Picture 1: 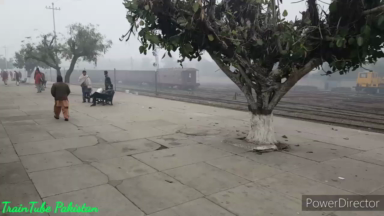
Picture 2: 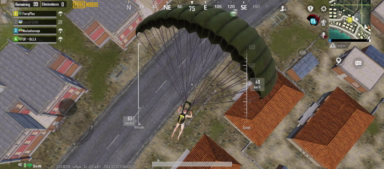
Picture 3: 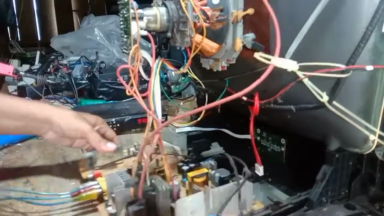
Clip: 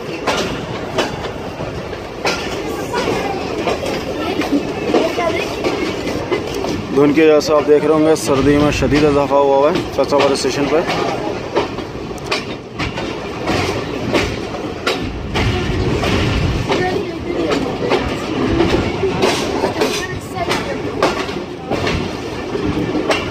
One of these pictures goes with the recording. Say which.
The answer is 1